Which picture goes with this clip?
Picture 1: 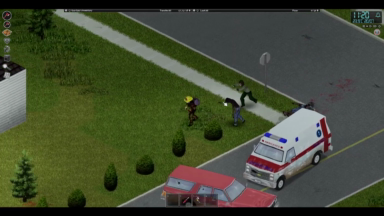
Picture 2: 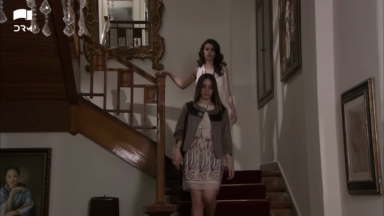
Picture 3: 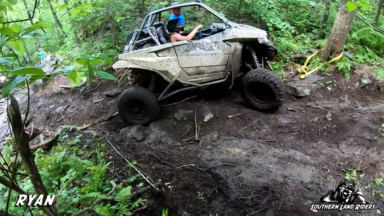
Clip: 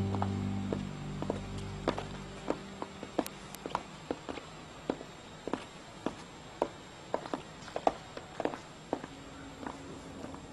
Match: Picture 2